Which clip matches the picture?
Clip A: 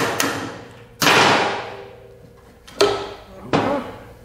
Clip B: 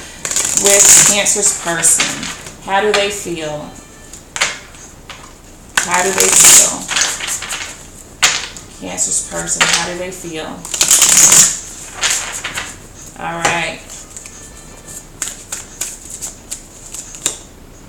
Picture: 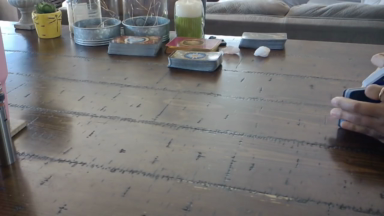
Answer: B